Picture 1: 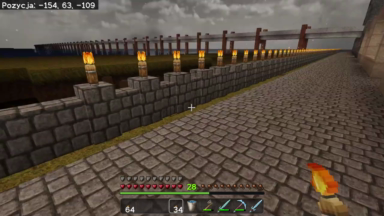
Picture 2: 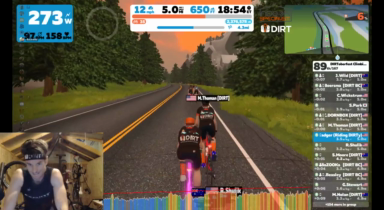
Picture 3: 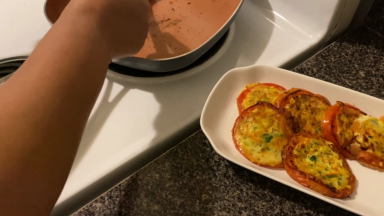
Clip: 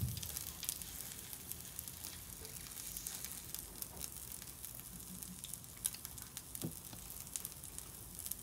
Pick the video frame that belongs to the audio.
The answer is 3